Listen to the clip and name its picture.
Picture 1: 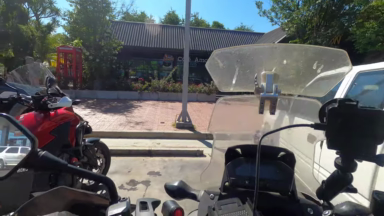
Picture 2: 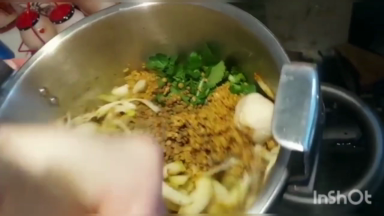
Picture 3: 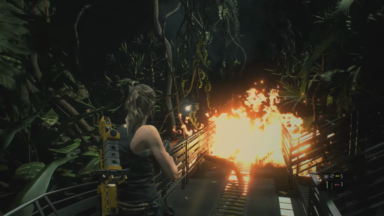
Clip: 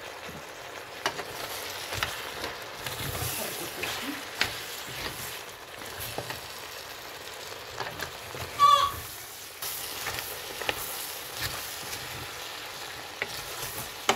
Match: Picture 2